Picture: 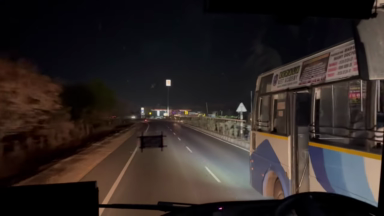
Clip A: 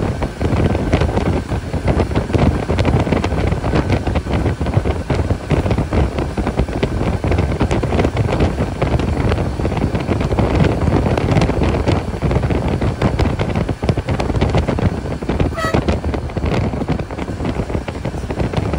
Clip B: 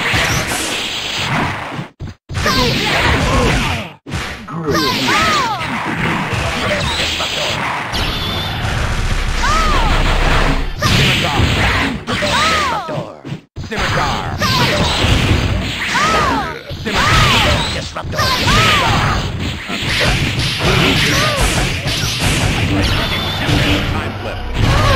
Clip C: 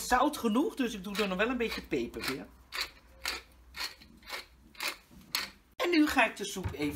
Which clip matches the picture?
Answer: A